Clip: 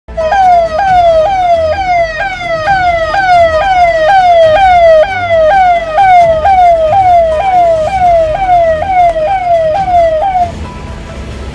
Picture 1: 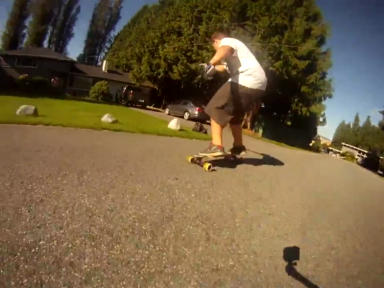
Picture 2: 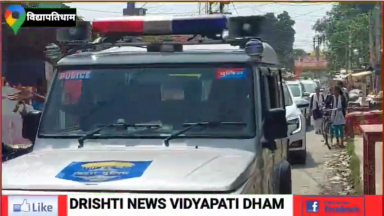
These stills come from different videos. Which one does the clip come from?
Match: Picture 2